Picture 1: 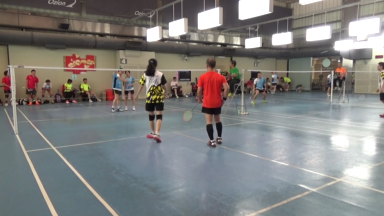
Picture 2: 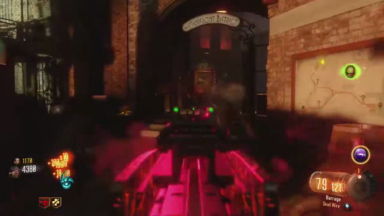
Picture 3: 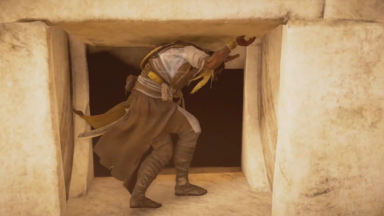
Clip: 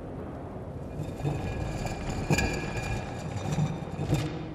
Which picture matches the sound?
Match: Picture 3